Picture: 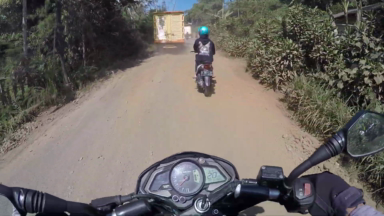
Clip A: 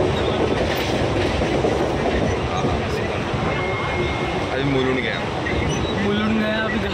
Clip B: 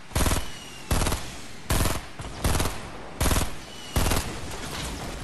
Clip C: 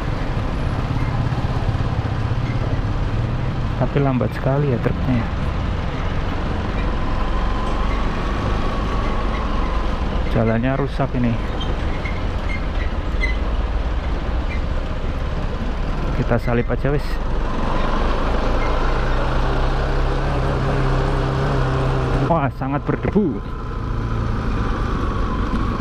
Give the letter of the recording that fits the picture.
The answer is C